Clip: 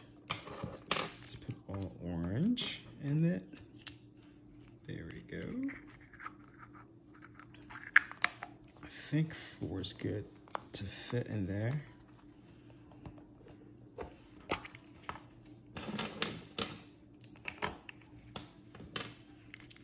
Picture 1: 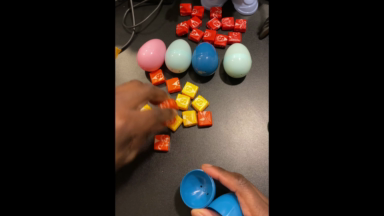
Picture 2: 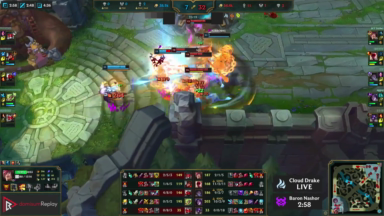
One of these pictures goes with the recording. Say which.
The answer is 1